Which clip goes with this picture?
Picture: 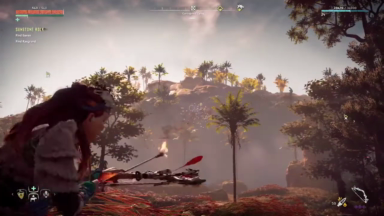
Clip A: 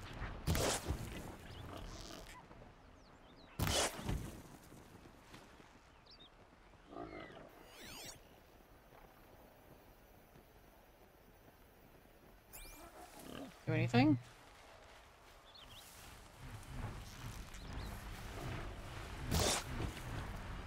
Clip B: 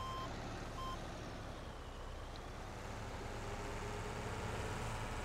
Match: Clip A